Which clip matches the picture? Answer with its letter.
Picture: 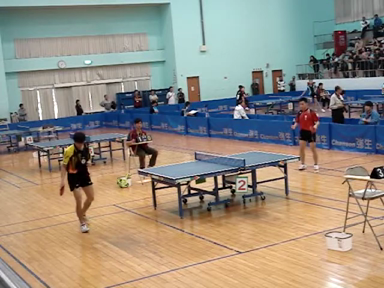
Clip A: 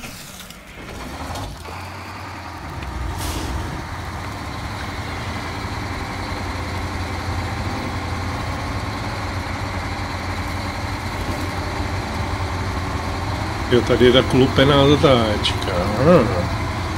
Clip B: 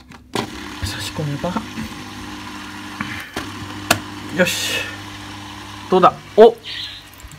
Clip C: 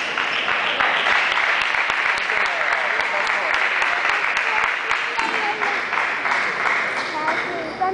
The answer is C